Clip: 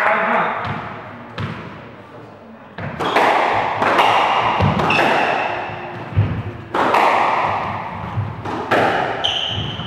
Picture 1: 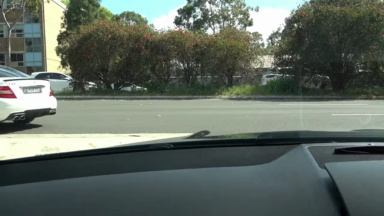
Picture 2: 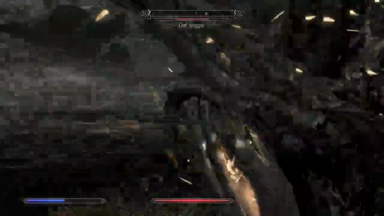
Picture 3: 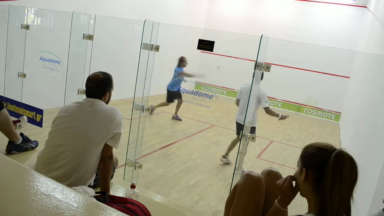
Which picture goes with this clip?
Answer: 3